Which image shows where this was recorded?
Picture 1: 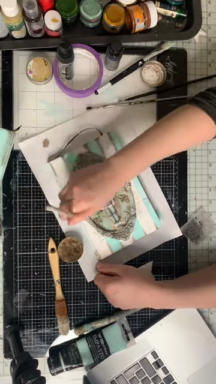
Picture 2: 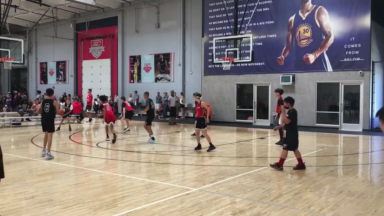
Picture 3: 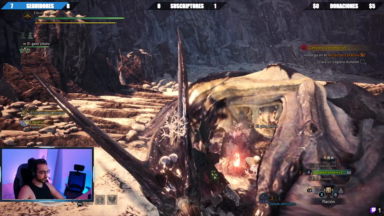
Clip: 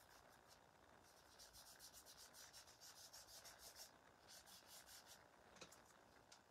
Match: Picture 1